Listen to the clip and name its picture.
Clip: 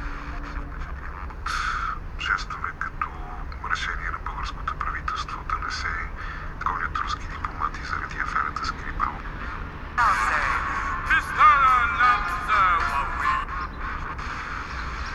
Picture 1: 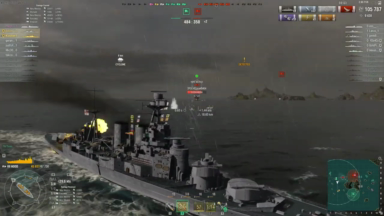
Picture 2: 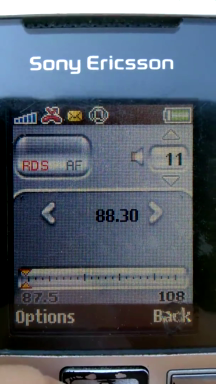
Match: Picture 2